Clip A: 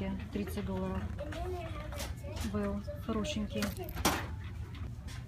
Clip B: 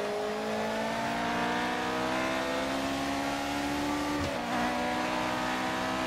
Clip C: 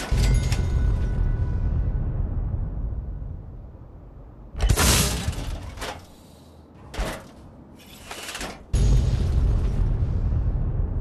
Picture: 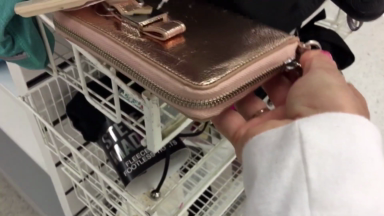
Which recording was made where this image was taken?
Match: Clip A